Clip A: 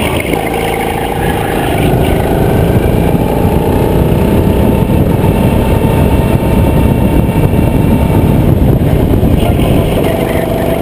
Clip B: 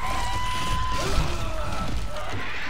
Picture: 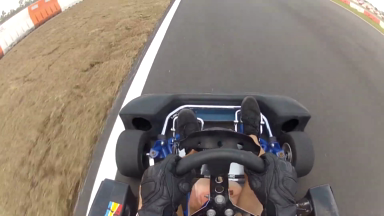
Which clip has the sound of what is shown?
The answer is A